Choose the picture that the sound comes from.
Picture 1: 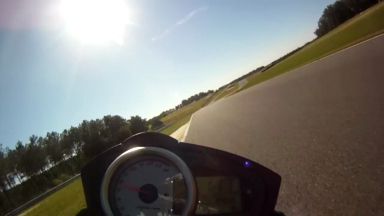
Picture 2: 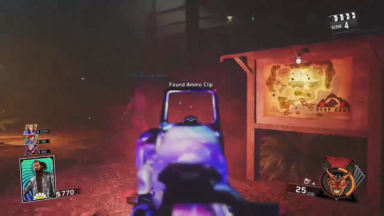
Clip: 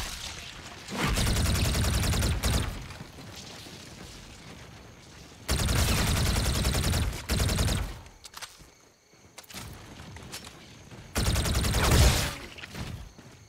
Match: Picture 2